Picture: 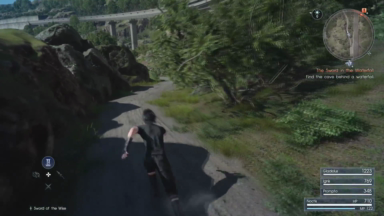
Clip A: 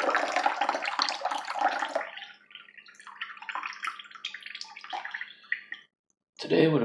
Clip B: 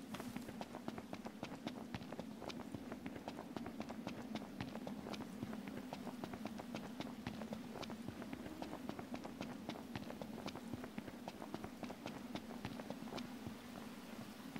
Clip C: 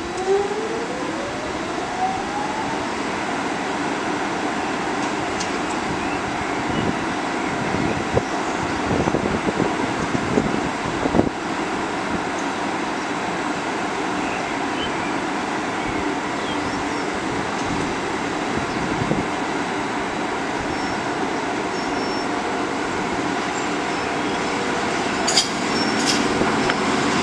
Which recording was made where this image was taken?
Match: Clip B